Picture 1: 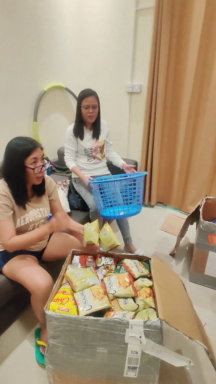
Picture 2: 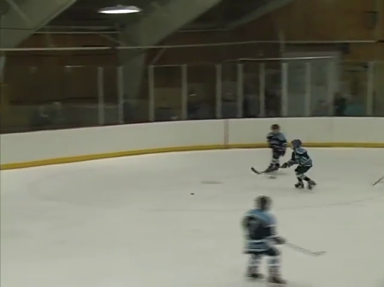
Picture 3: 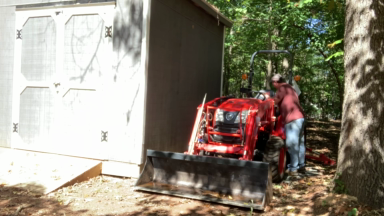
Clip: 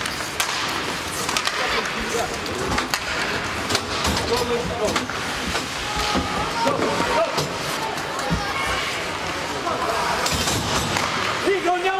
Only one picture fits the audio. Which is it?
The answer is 2